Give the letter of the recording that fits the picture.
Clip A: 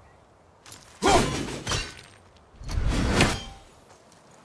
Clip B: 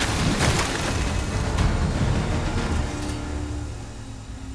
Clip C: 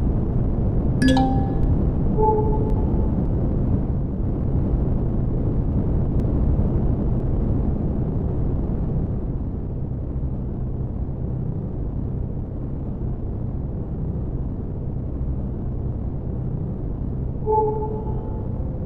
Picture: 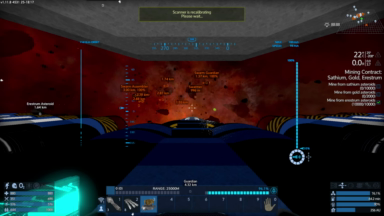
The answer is C